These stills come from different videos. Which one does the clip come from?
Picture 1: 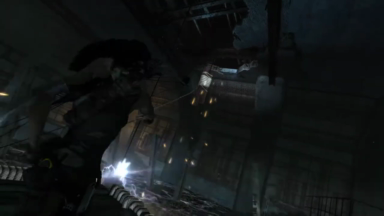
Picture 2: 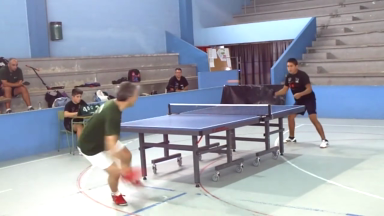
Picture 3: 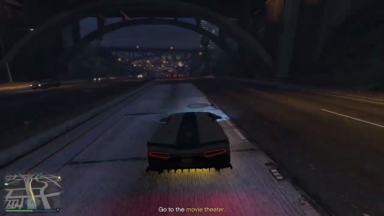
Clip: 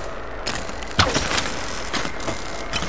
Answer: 1